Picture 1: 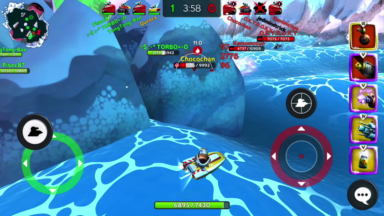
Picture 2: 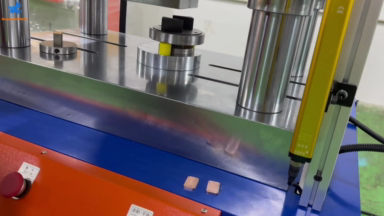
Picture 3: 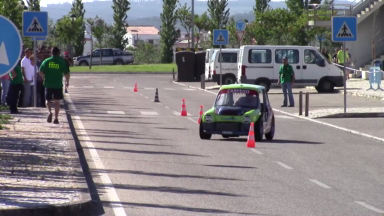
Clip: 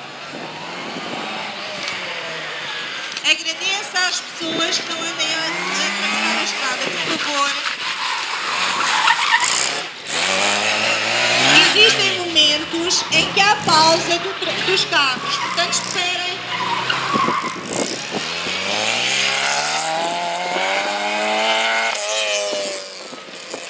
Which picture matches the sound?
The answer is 3